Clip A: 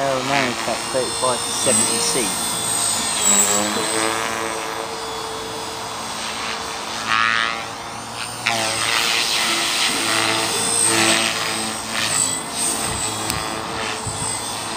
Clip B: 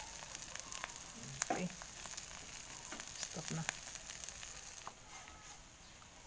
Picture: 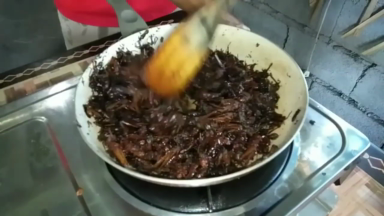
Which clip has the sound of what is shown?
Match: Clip B